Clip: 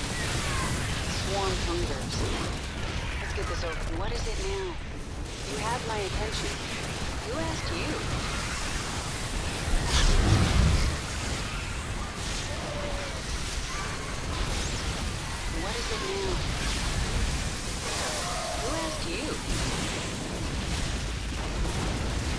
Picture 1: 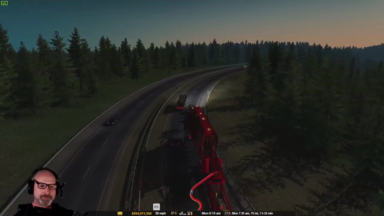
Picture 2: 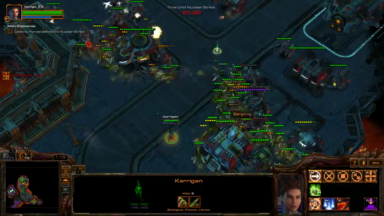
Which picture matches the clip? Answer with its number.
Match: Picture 2